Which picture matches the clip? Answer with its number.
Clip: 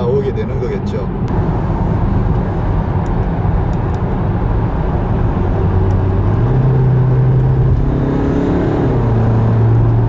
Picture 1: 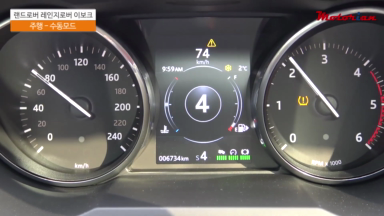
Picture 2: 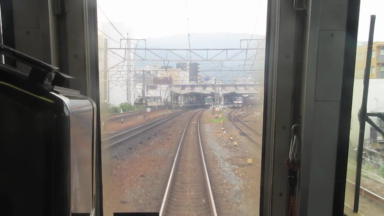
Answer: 1